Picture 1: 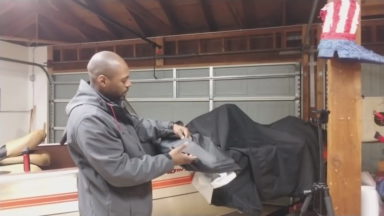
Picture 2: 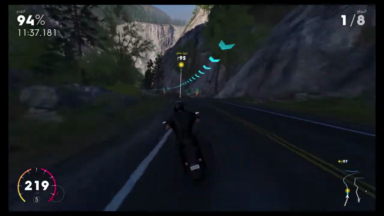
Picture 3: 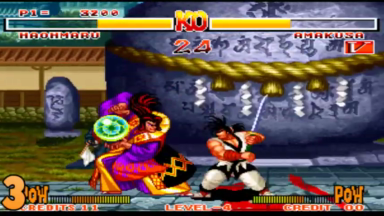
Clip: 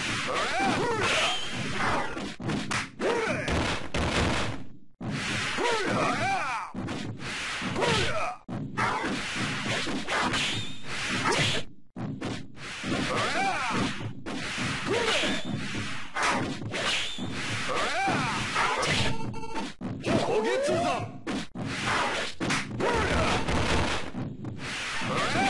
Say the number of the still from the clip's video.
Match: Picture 3